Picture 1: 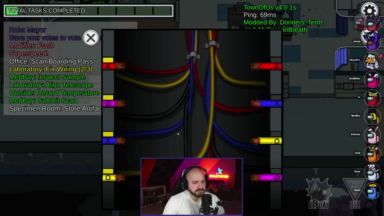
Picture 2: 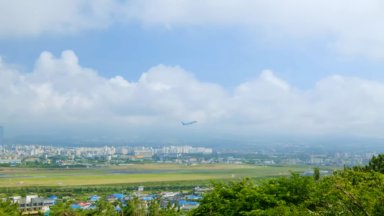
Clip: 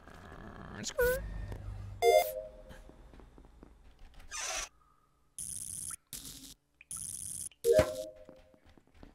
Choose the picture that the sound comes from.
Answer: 1